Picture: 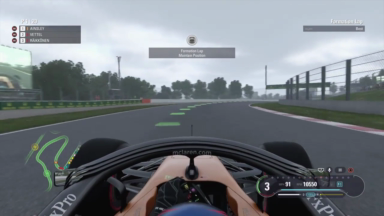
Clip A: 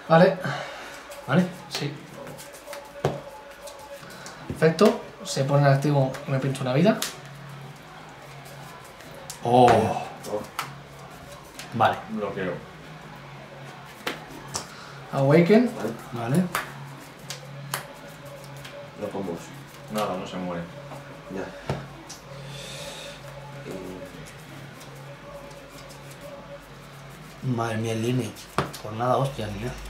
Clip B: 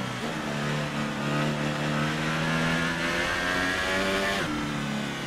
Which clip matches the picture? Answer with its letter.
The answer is B